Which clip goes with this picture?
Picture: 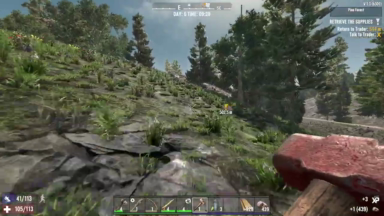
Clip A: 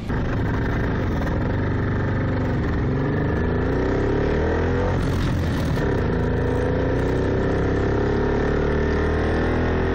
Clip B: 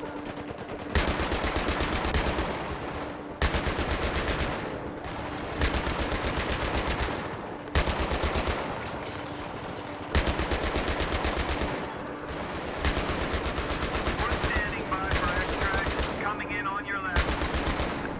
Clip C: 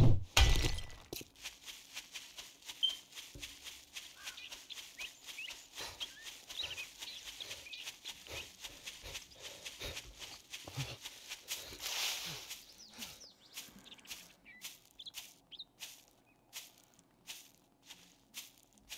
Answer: C